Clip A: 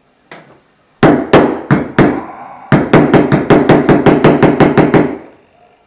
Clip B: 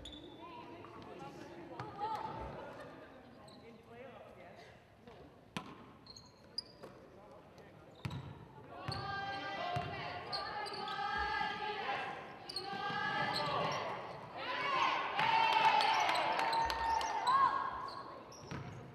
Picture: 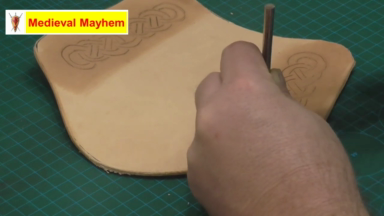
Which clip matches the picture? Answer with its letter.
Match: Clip A